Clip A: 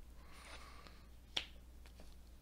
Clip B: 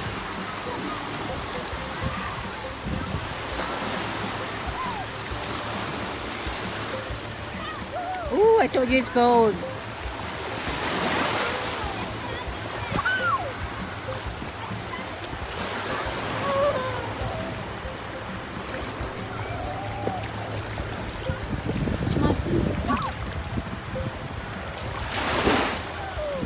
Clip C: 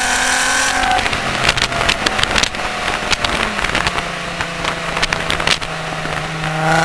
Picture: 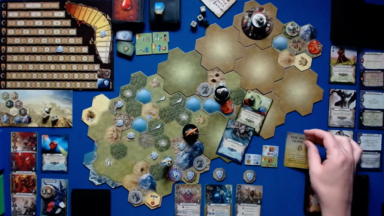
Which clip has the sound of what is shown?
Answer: A